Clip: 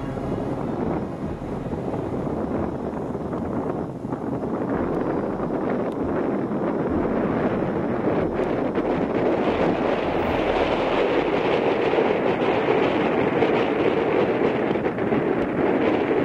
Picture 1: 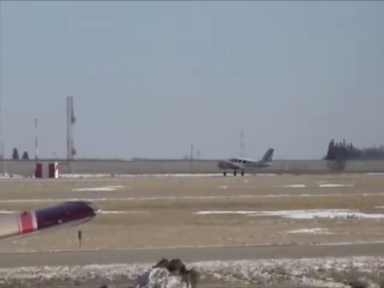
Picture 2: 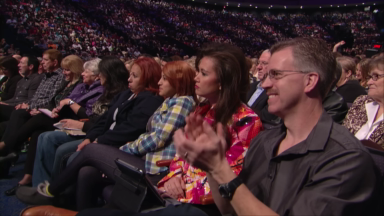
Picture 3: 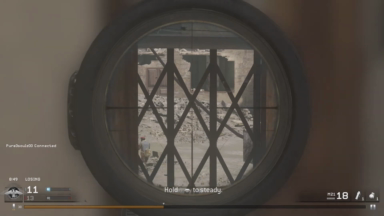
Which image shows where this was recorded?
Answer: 1